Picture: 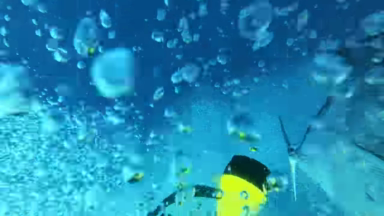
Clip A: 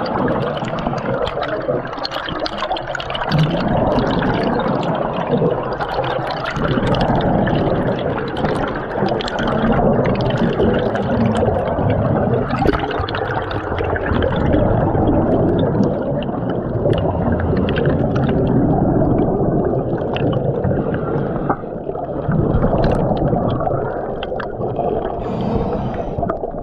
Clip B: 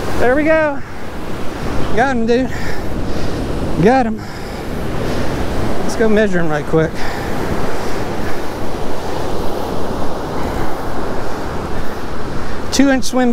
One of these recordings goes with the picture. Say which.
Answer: A